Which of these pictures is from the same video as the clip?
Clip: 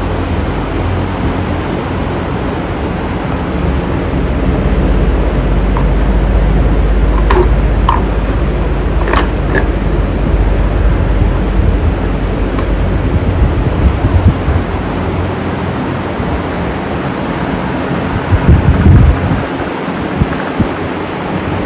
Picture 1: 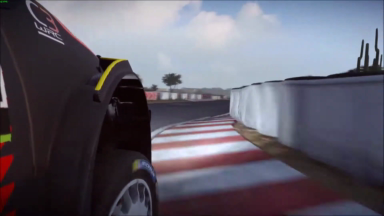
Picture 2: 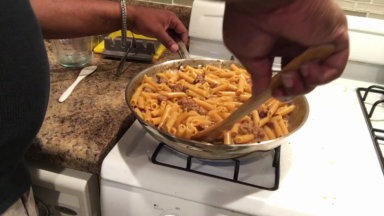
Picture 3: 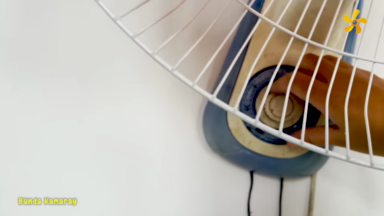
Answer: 3